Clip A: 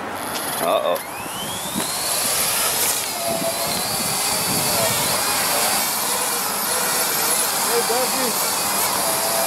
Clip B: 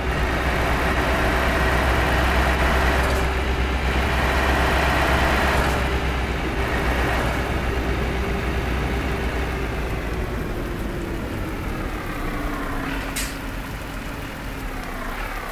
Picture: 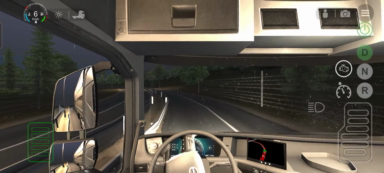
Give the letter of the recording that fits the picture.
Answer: B